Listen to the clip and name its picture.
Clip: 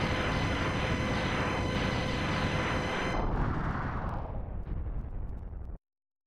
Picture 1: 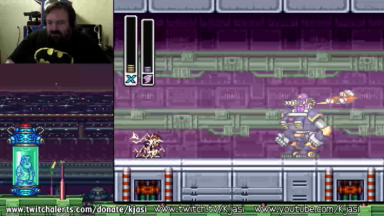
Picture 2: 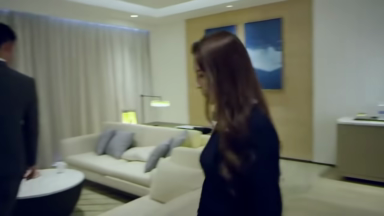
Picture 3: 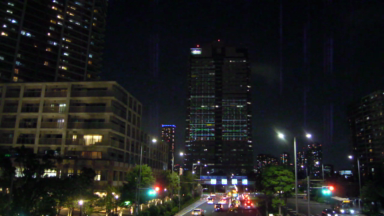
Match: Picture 1